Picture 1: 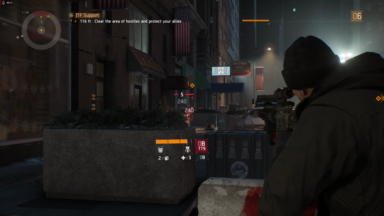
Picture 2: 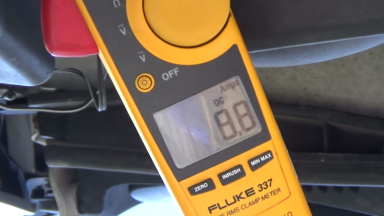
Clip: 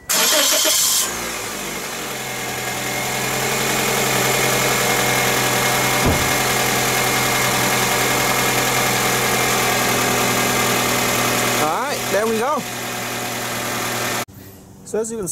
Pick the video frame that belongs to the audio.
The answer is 2